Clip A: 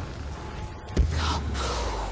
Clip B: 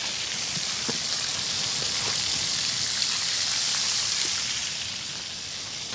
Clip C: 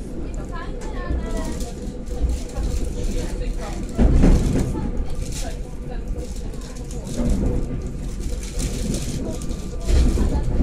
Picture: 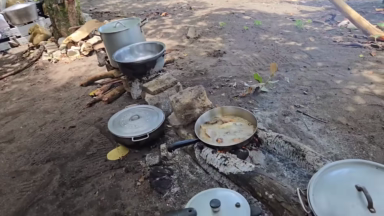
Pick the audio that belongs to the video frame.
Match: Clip B